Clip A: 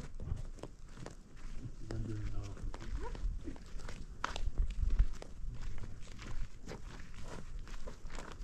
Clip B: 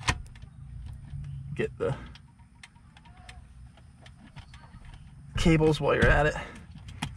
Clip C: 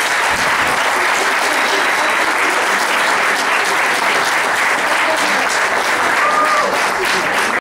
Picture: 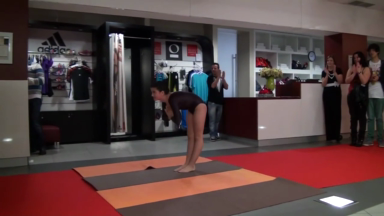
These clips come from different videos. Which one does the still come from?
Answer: C